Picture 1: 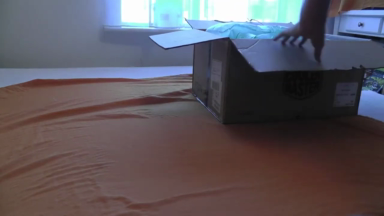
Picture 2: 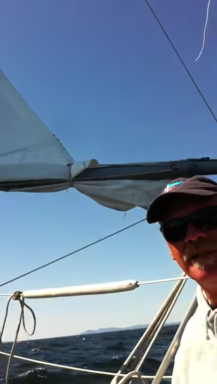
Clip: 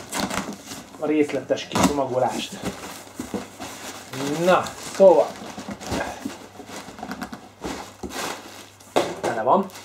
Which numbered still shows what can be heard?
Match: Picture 1